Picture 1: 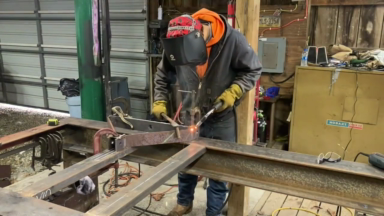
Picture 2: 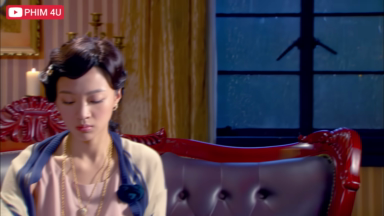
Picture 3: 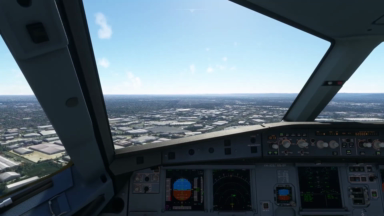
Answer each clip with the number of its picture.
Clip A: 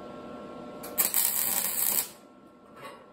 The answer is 1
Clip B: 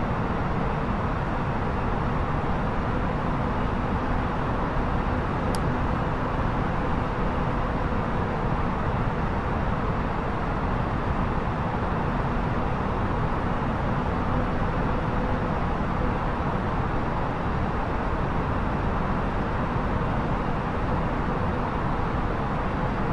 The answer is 3